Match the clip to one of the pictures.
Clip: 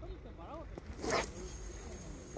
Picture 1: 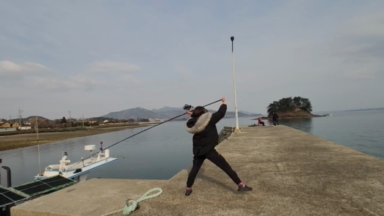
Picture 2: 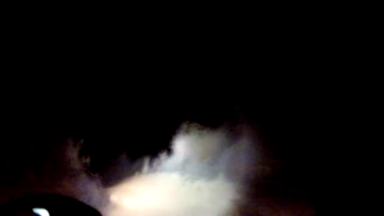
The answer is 1